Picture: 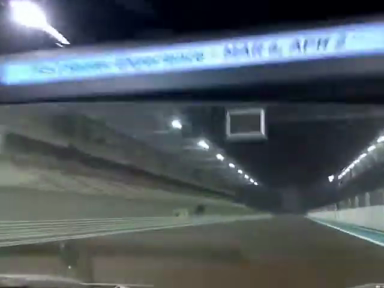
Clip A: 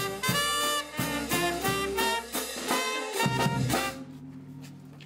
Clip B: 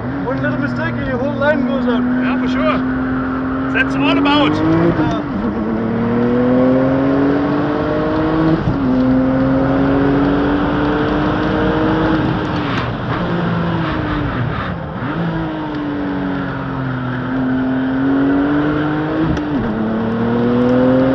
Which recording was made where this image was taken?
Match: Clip B